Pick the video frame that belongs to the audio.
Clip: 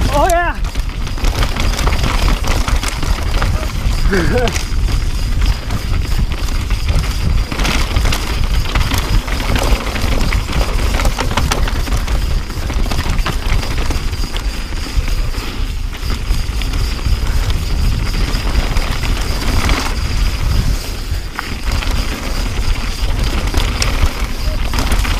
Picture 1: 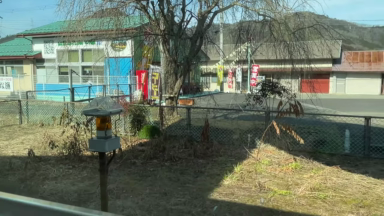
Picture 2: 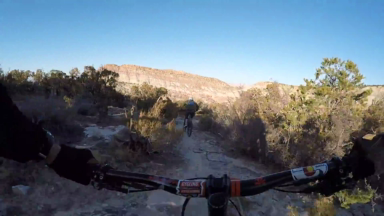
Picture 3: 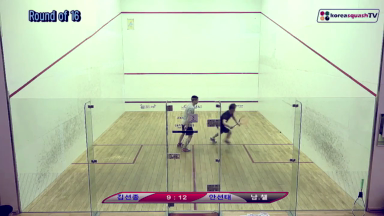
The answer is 2